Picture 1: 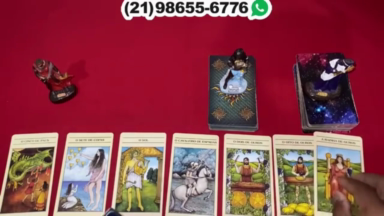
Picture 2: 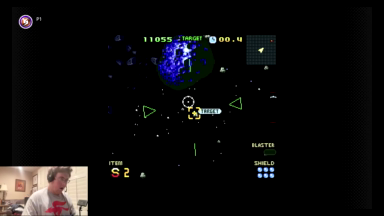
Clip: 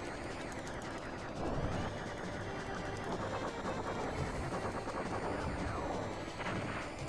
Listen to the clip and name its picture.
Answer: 2